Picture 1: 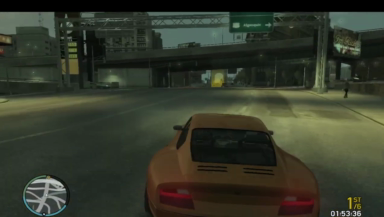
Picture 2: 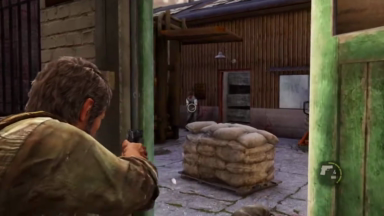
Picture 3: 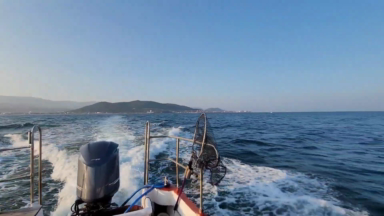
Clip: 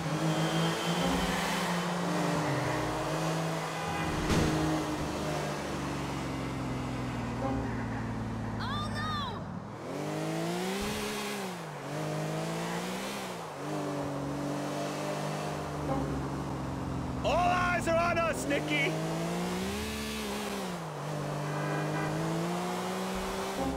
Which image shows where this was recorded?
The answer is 1